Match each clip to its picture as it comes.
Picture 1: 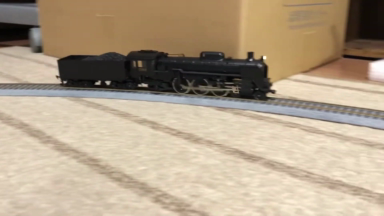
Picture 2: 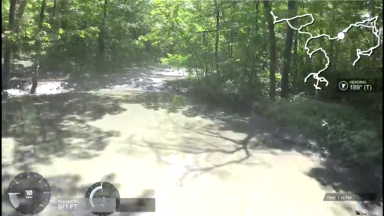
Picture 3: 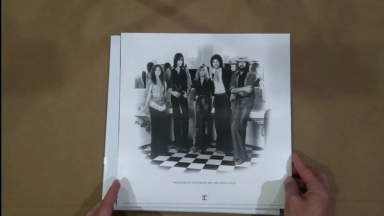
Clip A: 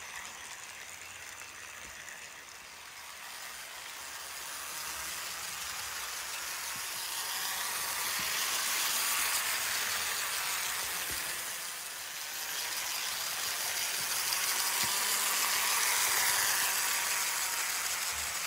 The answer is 1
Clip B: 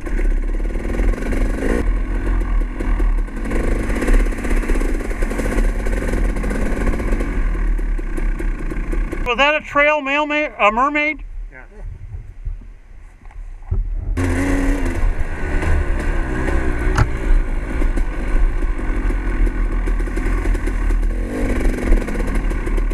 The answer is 2